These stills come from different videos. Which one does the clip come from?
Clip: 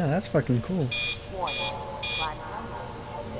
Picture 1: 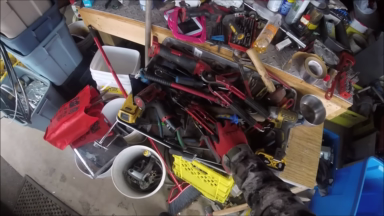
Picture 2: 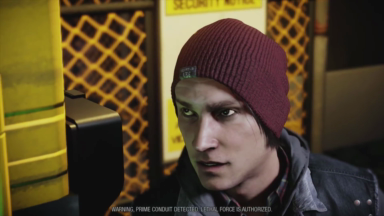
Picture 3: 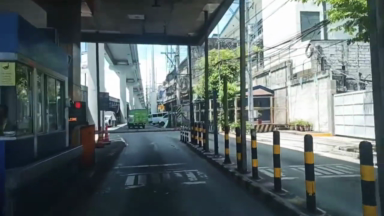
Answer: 2